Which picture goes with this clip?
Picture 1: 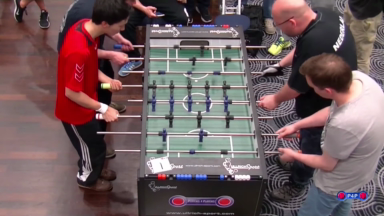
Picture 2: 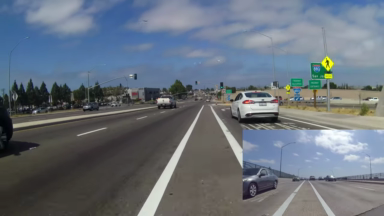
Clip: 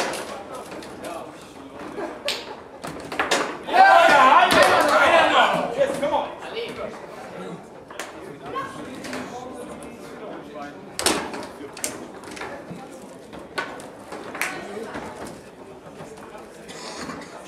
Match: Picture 1